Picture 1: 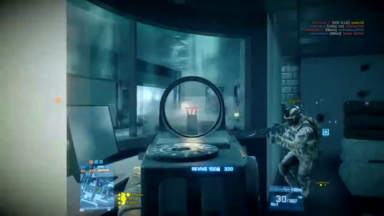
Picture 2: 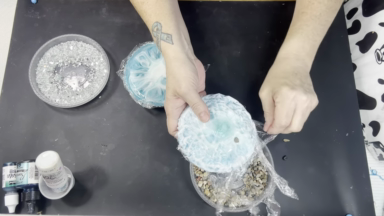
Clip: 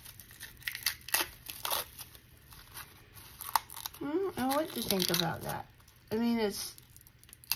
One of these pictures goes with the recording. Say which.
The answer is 2